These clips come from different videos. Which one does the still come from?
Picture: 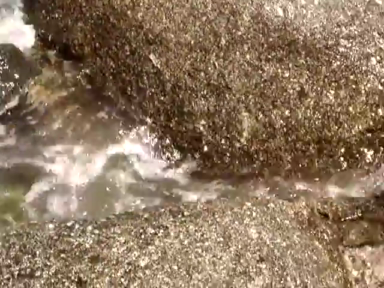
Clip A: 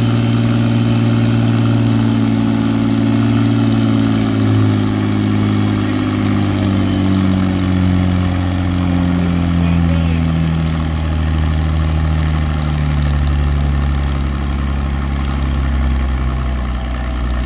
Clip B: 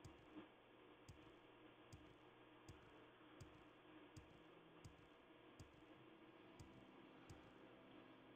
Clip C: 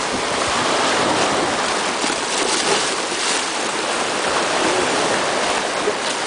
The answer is C